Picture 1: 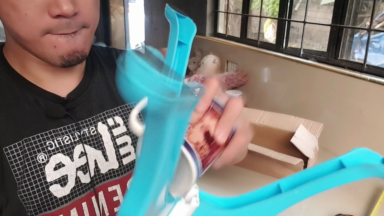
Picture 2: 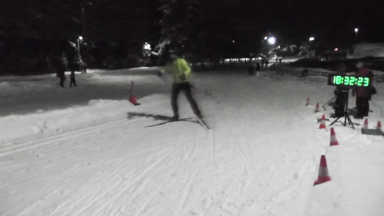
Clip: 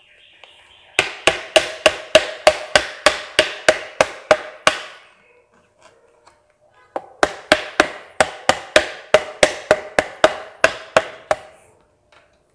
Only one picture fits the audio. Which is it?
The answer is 1